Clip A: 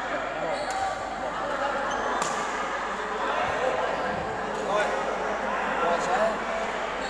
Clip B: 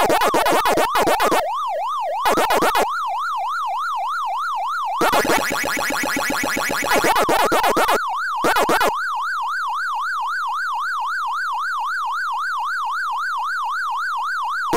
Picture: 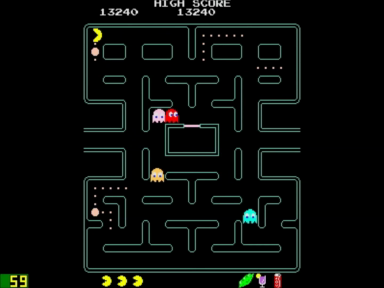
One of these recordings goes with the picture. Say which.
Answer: B